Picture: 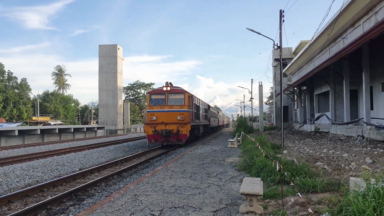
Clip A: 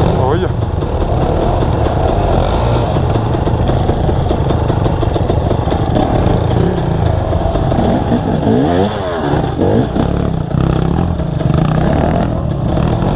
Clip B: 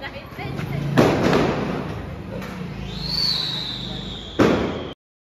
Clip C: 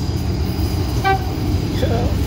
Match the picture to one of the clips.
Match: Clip C